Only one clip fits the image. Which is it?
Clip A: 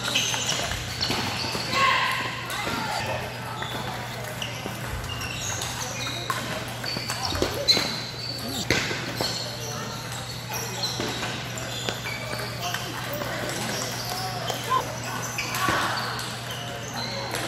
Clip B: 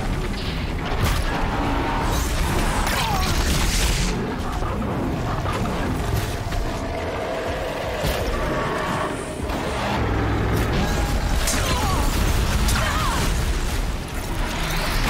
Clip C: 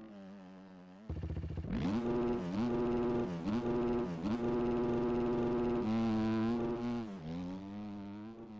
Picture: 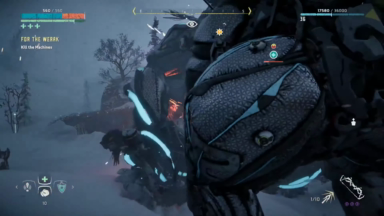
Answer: B